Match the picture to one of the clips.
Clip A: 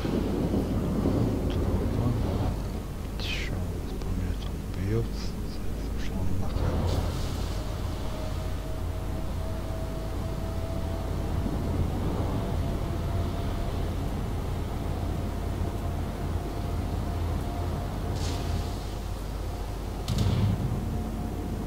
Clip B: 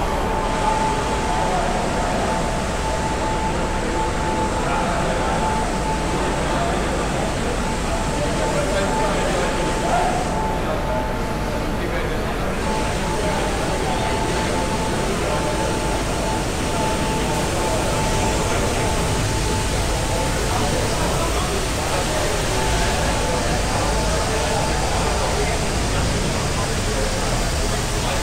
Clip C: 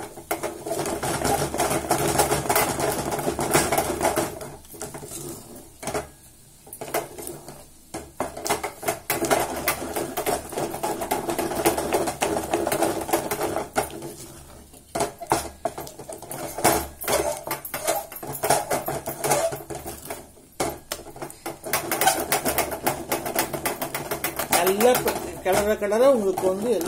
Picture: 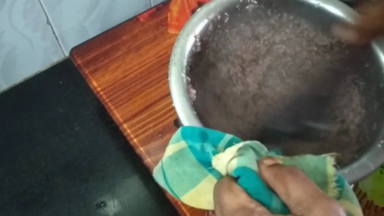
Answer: C